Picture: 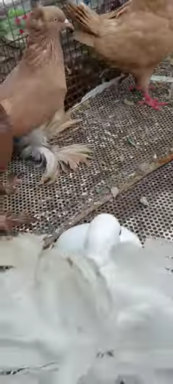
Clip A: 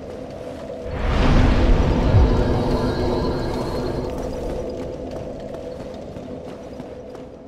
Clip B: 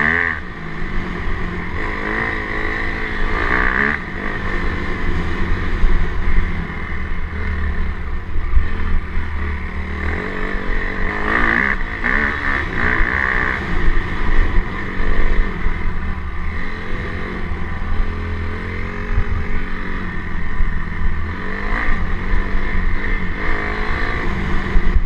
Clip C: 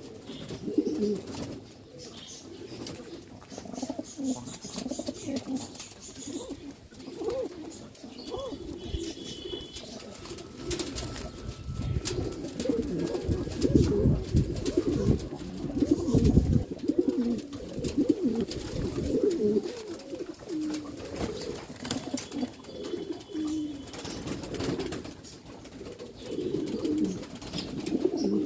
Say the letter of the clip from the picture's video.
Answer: C